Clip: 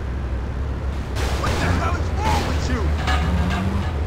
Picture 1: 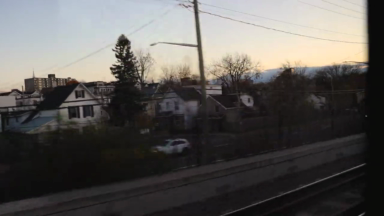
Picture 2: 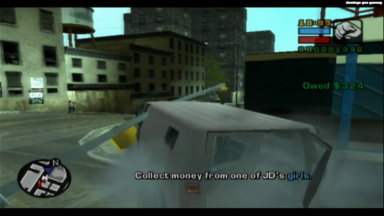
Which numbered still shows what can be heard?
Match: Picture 2